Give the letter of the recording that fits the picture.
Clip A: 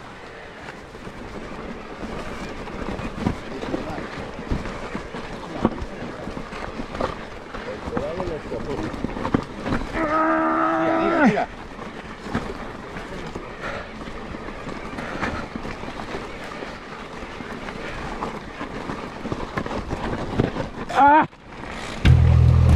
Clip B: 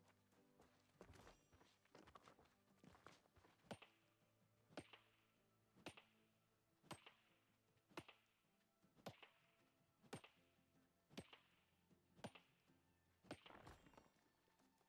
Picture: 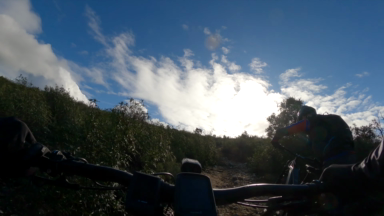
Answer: A